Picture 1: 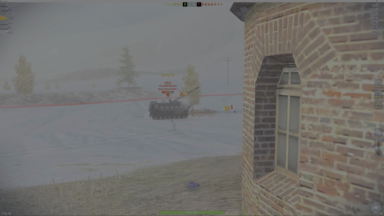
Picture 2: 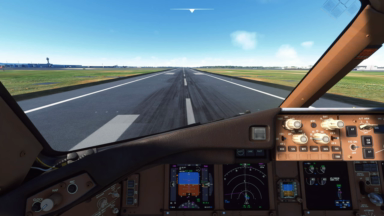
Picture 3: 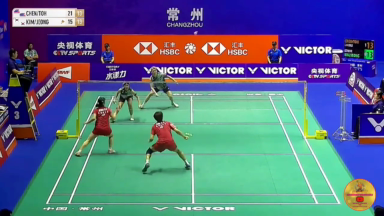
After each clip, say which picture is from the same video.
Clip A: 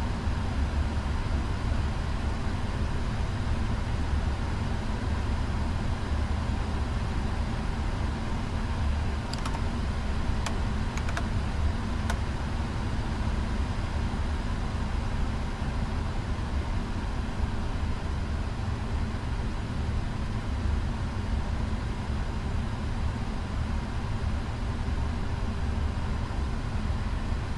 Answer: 2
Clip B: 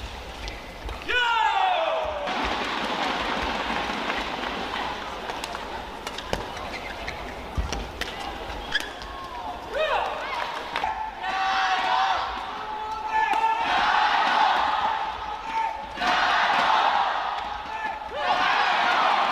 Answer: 3